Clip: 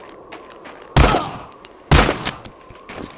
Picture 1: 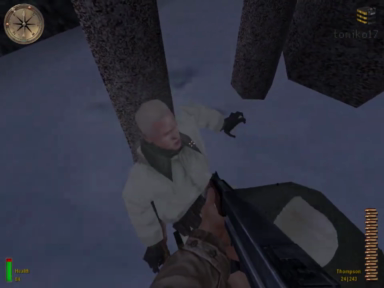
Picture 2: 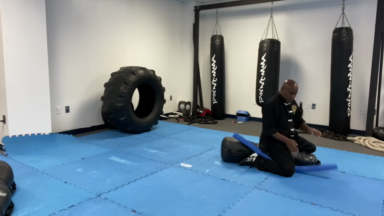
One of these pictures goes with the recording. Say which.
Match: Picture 1